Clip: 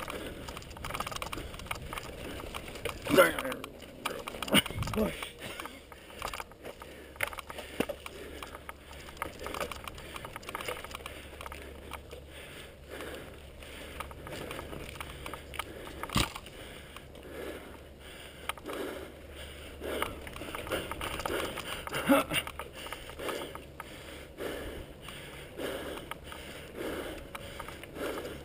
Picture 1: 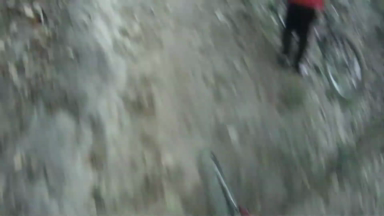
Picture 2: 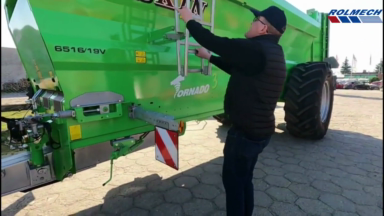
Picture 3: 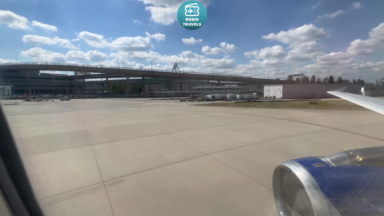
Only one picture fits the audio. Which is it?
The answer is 1